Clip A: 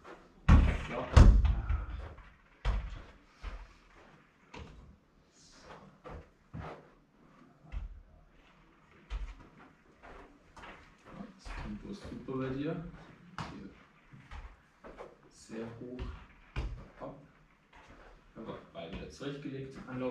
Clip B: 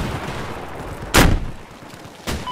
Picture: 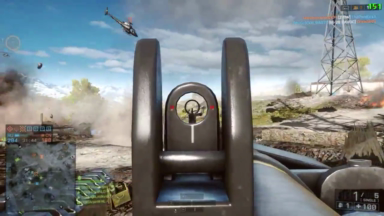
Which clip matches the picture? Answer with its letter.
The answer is B